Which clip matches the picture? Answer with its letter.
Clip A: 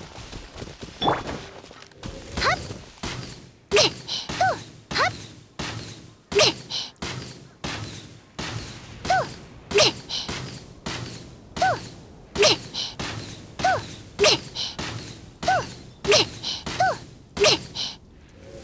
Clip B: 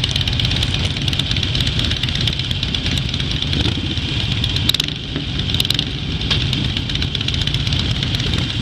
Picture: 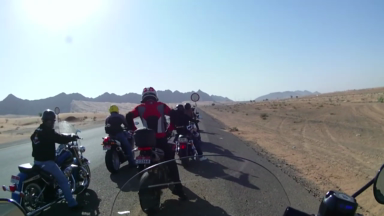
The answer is B